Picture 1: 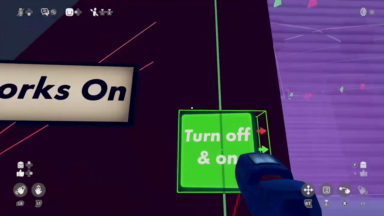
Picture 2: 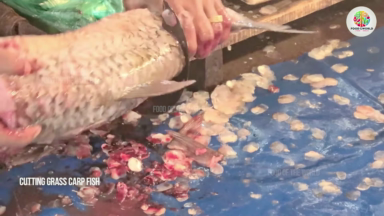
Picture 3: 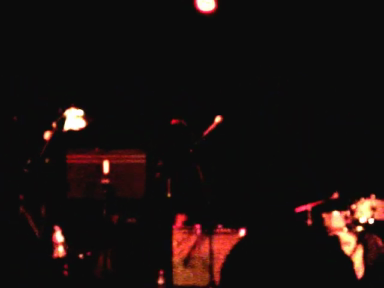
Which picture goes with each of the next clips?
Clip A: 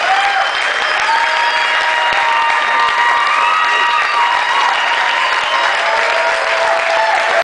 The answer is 3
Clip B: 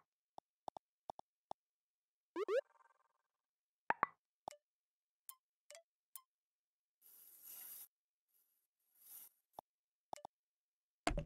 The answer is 1